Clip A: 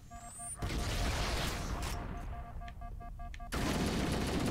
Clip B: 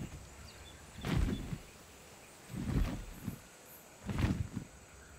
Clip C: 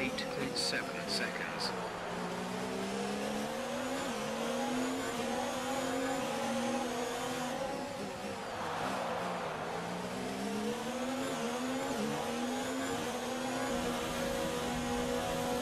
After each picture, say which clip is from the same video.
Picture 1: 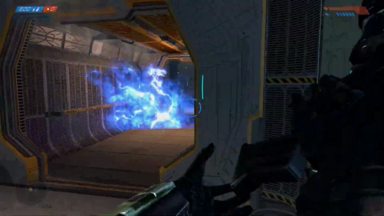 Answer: A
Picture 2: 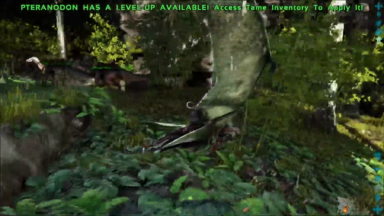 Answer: B